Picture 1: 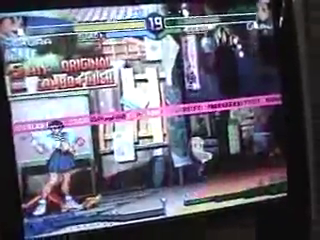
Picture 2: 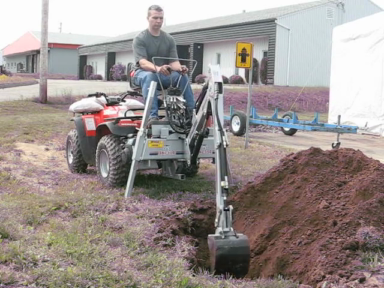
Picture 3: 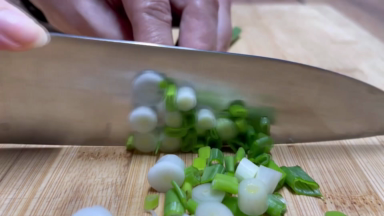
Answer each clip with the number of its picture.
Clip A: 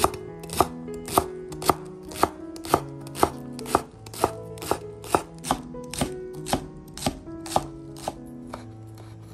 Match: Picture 3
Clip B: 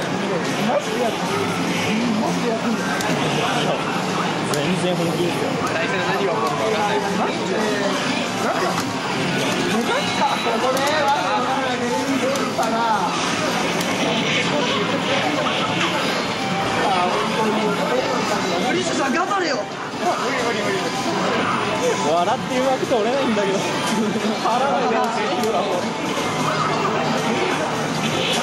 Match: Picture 1